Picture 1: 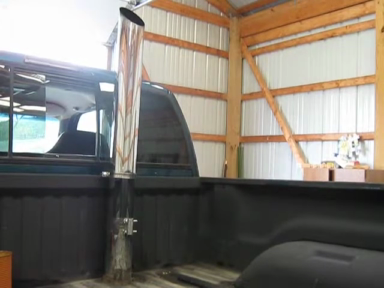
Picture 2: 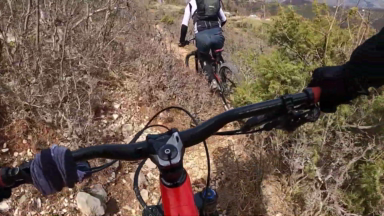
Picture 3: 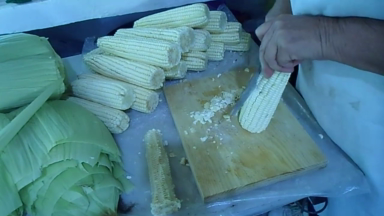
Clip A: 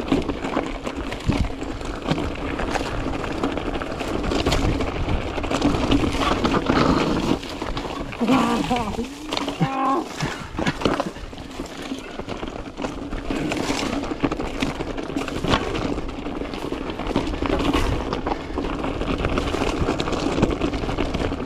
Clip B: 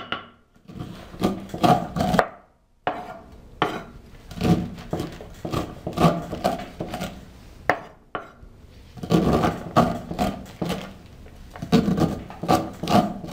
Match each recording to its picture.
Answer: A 2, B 3